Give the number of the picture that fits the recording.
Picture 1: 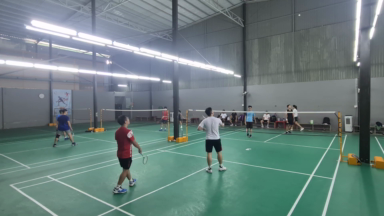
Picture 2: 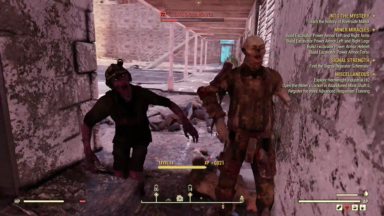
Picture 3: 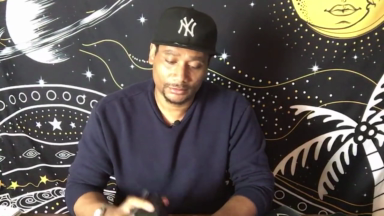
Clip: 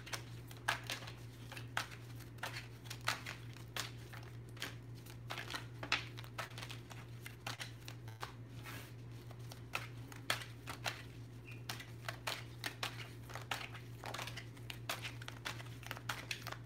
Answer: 3